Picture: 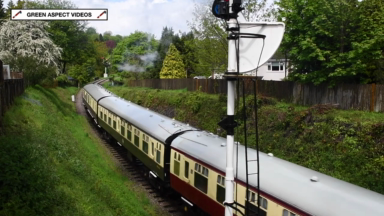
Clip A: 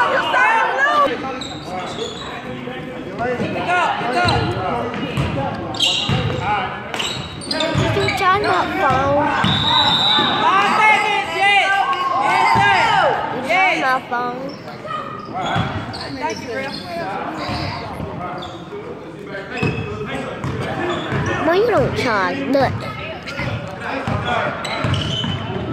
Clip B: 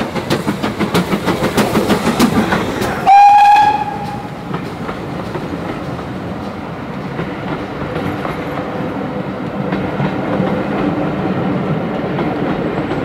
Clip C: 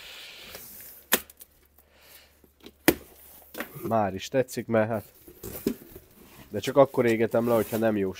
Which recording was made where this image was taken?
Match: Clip B